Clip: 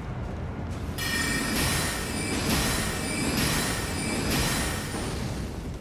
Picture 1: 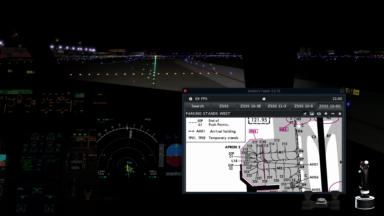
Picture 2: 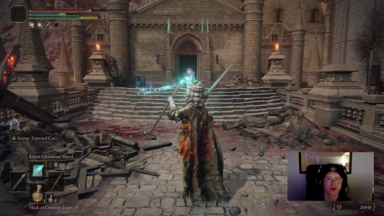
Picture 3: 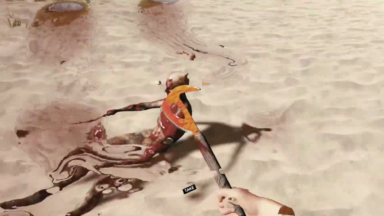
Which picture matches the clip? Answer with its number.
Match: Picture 2